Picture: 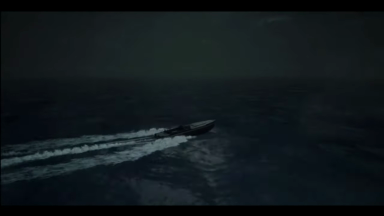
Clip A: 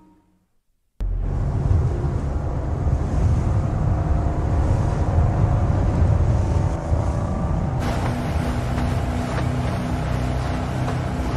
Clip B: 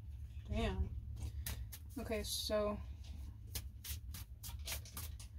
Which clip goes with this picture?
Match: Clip A